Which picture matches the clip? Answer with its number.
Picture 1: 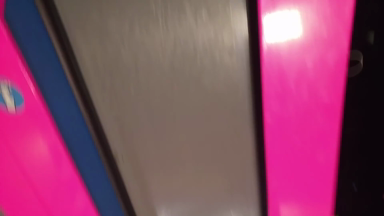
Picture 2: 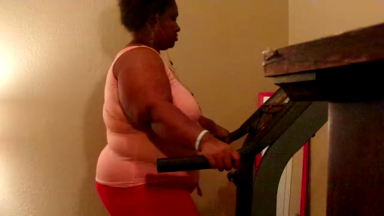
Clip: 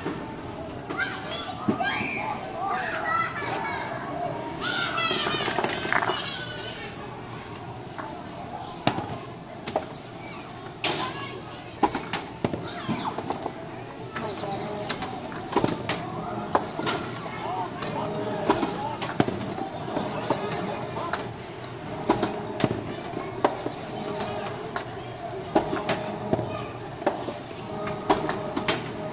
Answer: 1